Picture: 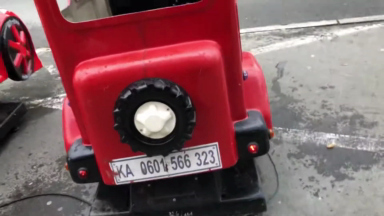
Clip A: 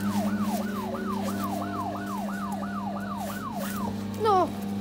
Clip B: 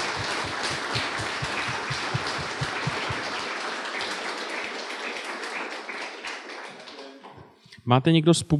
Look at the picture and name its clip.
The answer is A